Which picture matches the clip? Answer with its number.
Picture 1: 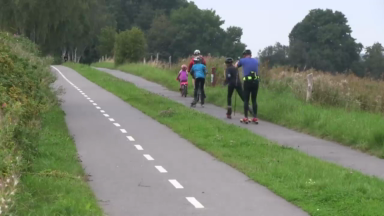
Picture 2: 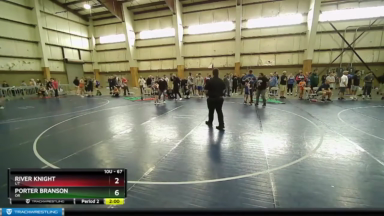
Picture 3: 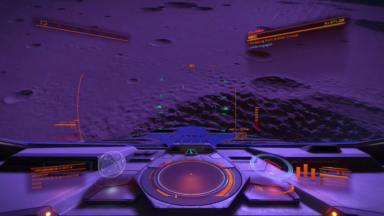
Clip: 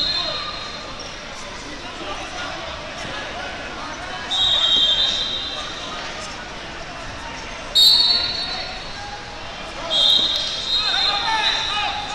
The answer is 2